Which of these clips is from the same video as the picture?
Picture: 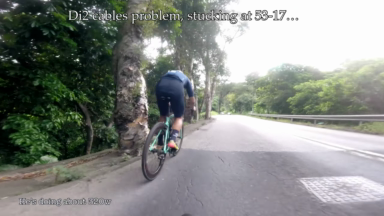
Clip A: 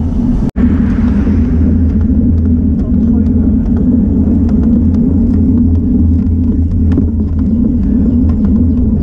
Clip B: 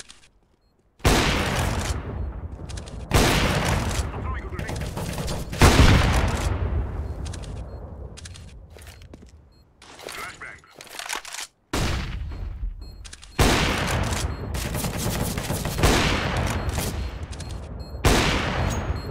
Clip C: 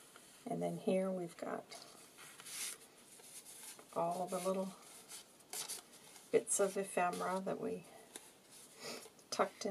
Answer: A